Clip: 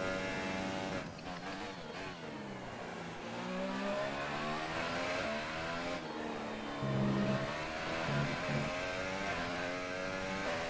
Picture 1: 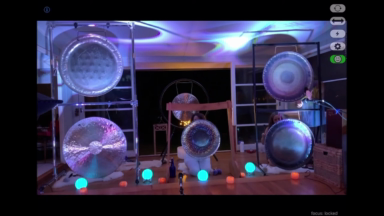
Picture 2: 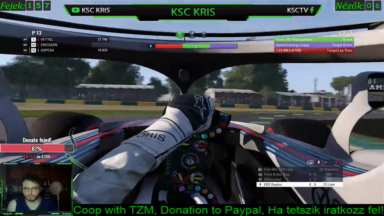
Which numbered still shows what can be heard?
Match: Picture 2